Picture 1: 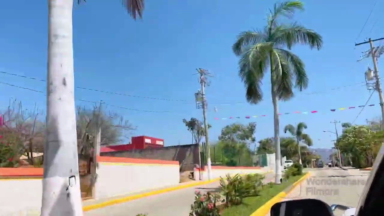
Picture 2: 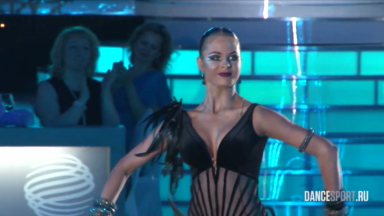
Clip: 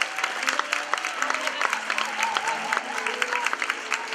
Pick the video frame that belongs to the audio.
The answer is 2